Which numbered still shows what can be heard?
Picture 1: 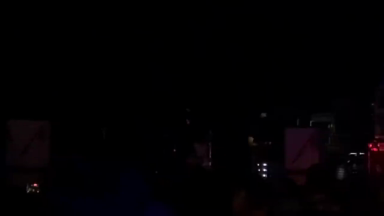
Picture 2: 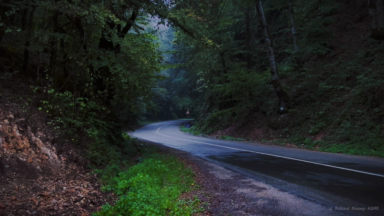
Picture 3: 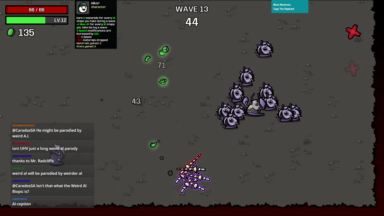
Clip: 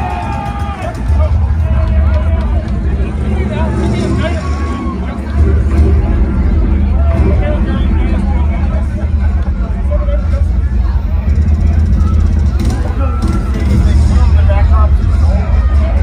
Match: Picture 1